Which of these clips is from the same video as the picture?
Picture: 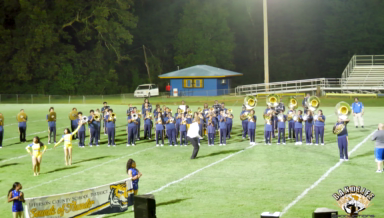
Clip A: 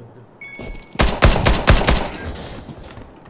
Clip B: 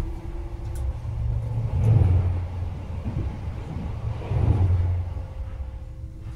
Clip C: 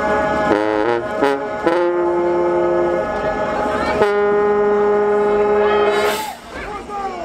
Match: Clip C